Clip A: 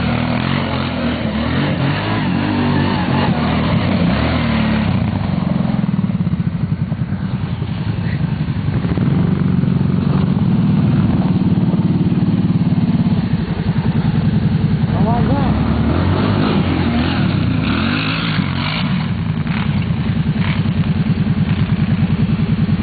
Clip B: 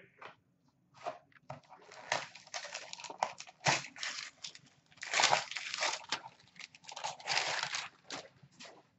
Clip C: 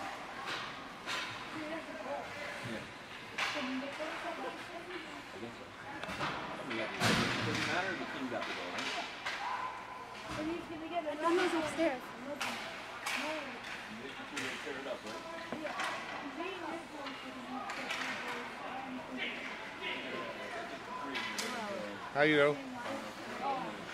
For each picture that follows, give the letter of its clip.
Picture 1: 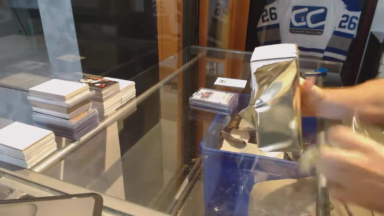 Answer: B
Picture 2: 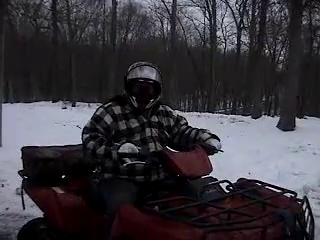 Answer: A